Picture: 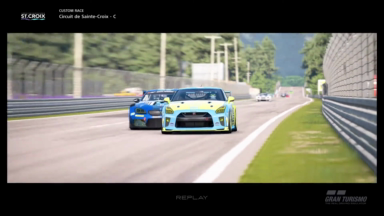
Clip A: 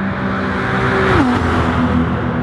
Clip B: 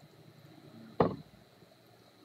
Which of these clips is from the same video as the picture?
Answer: A